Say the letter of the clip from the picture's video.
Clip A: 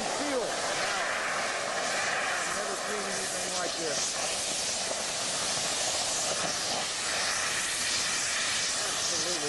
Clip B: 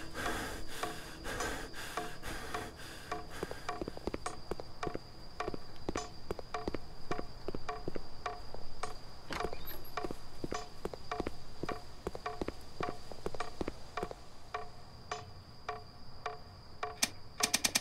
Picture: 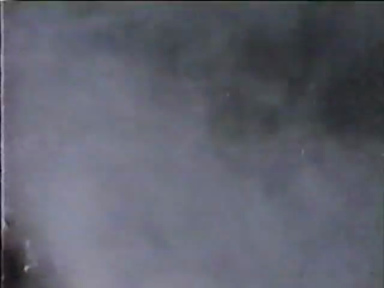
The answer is A